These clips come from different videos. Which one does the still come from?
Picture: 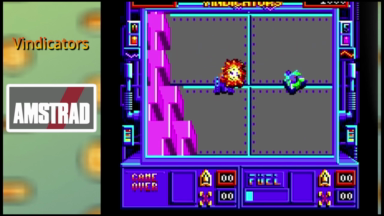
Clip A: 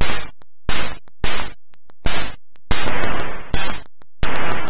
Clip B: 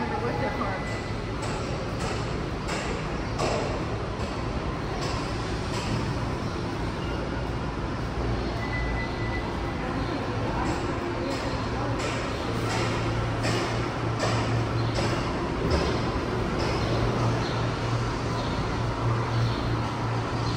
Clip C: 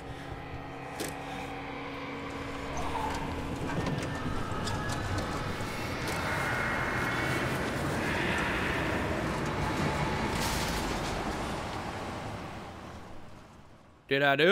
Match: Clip A